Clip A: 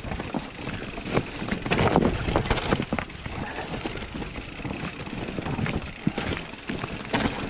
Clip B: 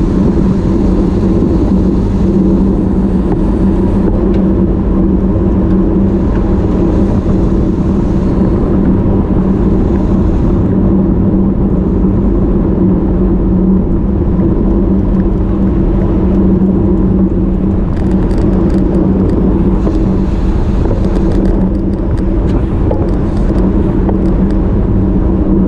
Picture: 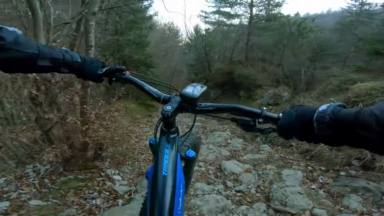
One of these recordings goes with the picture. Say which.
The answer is A